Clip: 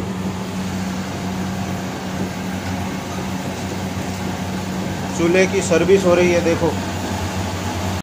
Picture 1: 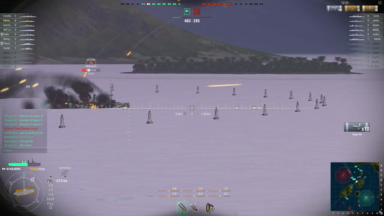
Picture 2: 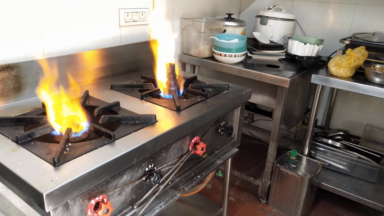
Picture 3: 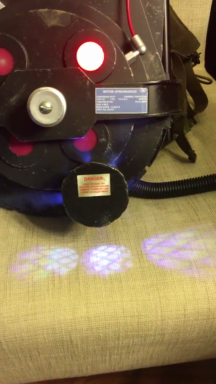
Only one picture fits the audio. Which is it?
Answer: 2